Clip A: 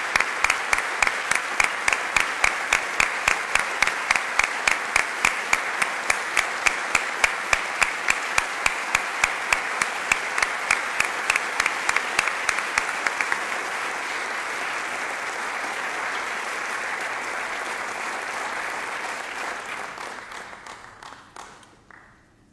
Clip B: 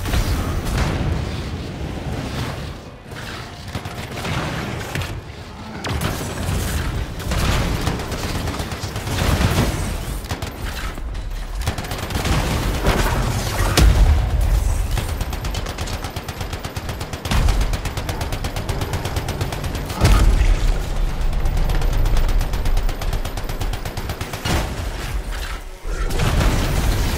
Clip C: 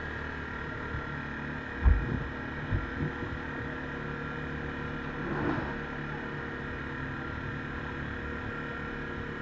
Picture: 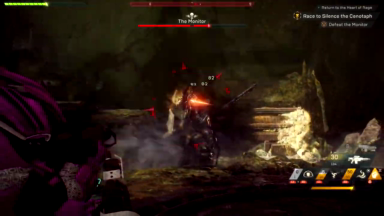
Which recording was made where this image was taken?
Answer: B